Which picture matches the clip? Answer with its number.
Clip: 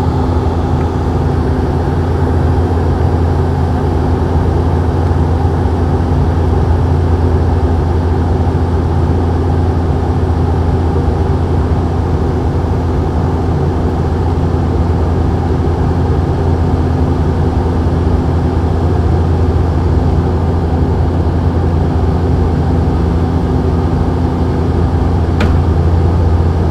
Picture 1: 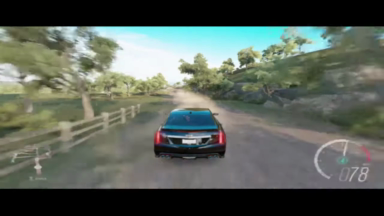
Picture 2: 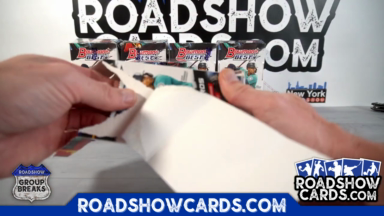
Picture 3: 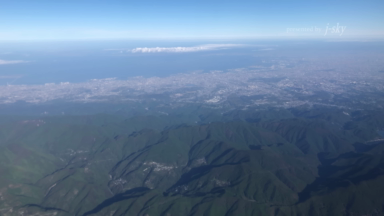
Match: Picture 3